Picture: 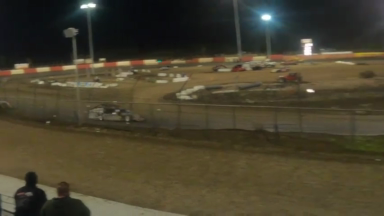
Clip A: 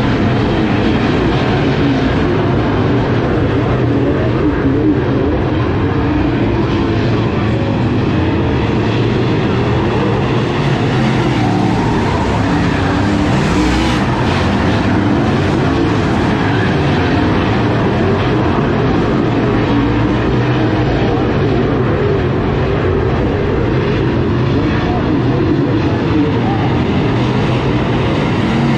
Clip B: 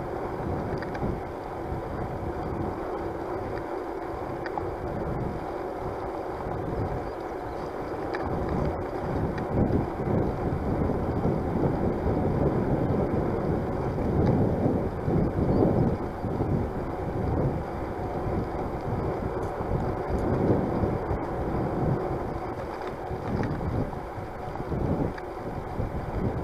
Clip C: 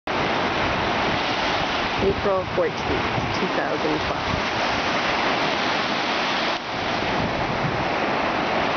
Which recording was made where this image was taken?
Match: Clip A